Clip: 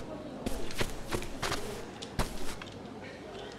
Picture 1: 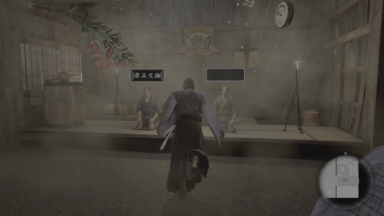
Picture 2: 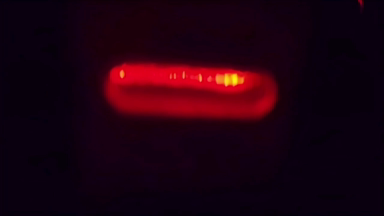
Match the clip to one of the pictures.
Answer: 1